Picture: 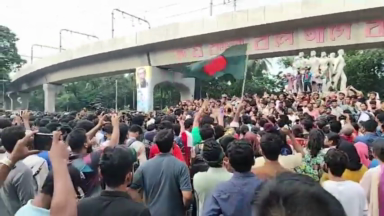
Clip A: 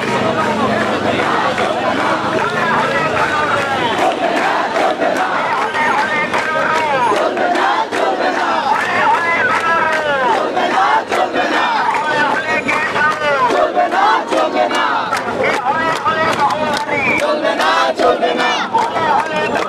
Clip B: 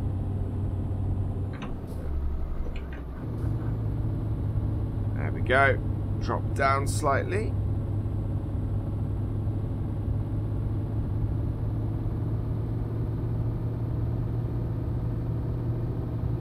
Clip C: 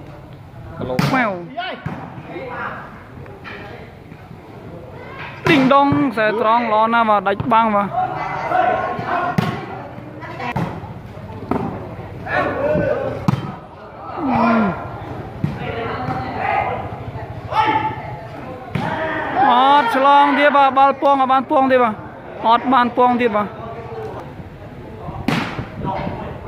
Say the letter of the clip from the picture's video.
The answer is A